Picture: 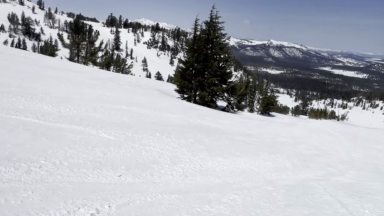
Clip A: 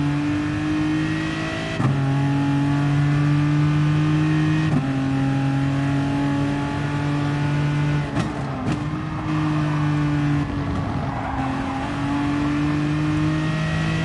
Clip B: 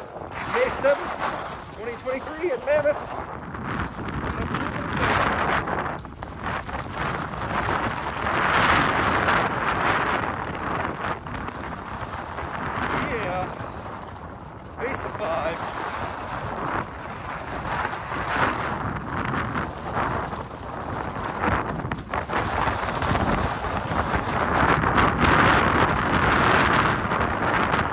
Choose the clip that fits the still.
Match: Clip B